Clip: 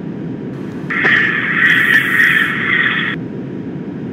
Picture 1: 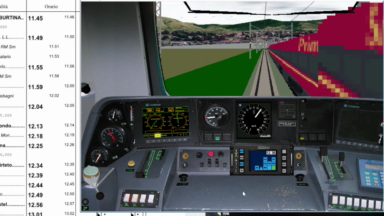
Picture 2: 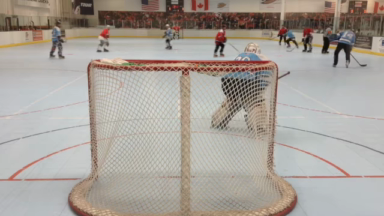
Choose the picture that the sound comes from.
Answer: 1